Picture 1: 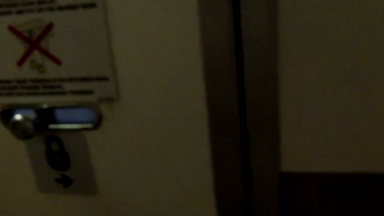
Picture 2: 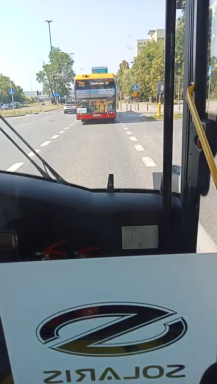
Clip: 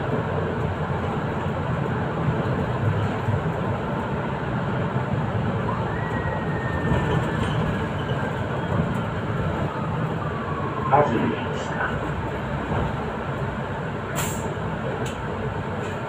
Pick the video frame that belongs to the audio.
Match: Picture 2